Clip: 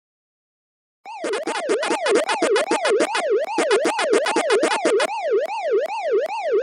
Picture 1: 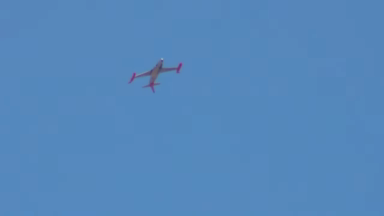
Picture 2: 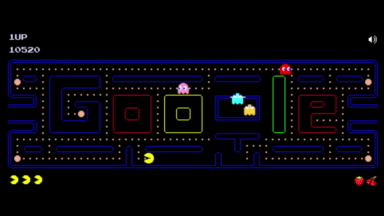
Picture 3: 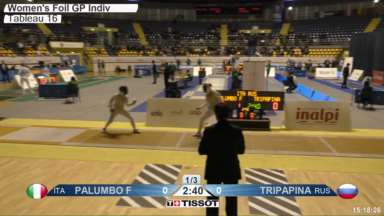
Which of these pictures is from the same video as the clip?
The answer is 2